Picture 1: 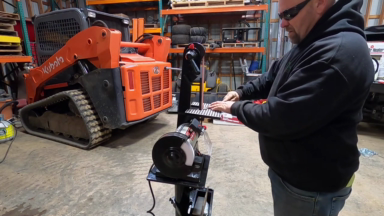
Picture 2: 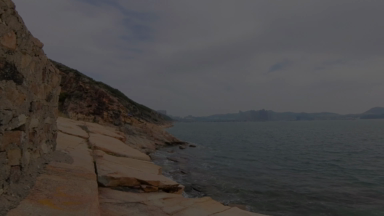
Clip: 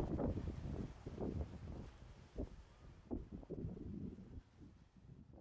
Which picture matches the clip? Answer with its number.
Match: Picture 2